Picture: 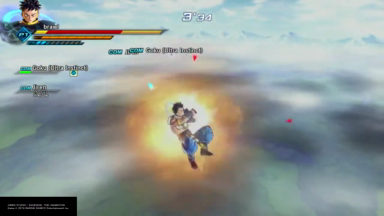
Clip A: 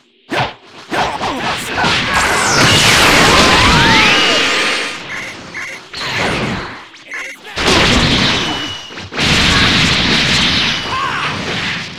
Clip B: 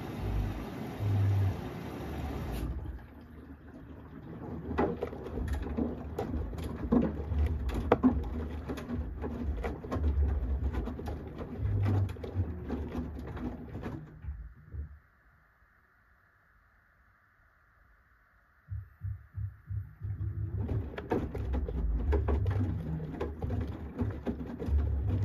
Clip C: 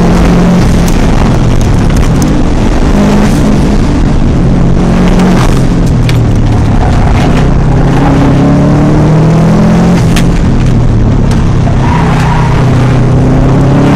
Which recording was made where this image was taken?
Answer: A